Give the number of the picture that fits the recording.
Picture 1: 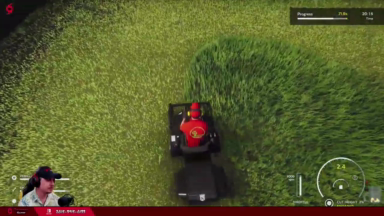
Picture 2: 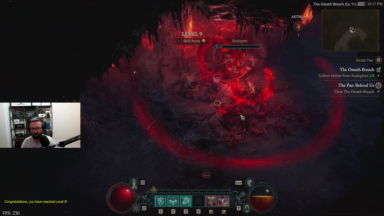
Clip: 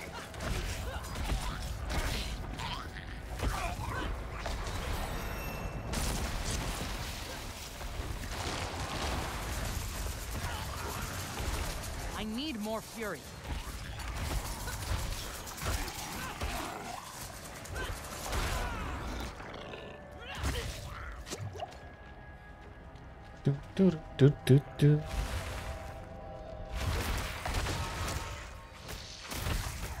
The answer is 2